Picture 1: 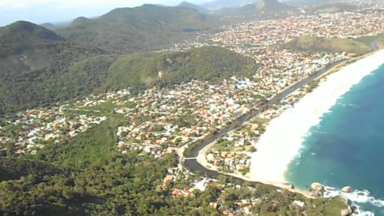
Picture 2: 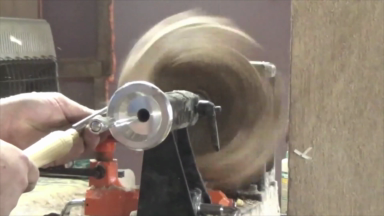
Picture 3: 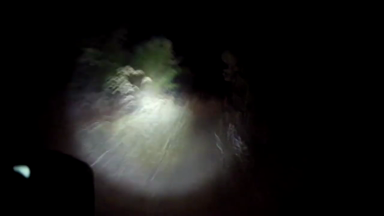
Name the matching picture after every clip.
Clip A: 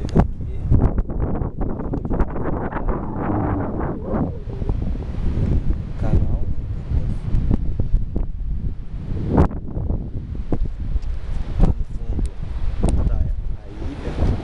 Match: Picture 1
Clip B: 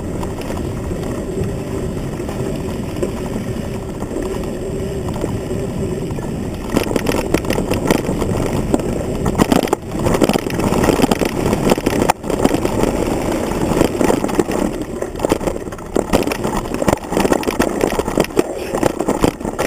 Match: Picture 3